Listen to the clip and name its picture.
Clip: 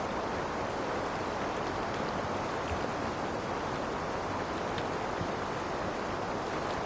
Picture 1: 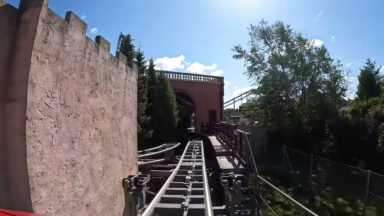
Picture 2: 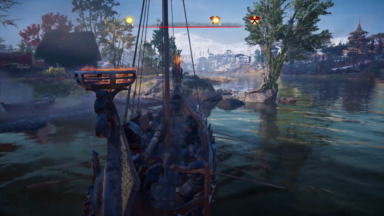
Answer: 2